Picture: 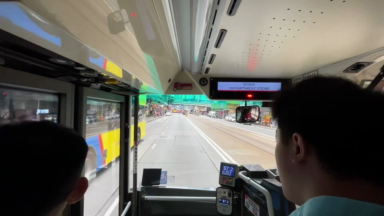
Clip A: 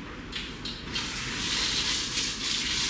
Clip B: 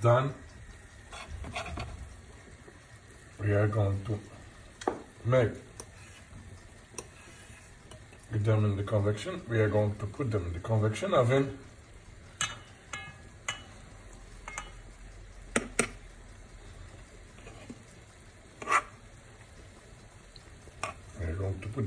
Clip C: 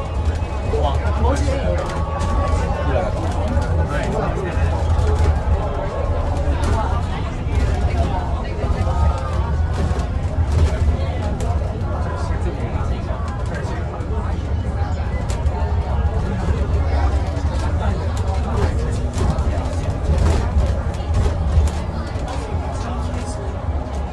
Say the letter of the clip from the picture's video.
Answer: C